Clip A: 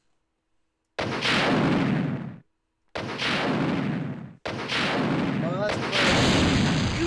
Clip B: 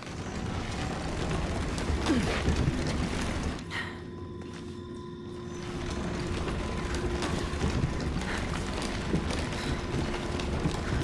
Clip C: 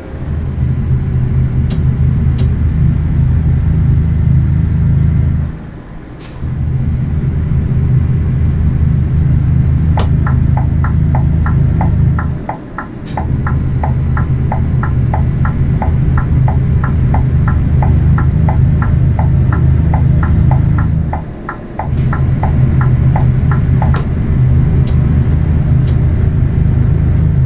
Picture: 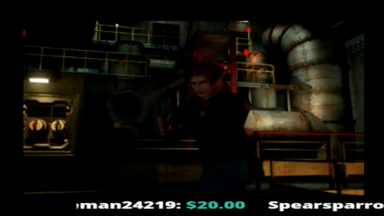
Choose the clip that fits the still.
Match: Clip A